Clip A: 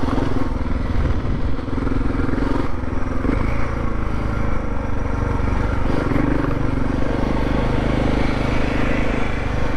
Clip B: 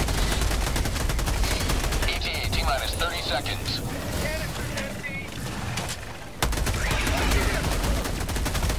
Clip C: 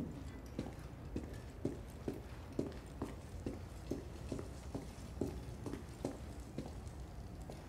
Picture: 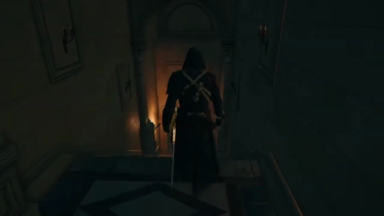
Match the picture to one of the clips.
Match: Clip C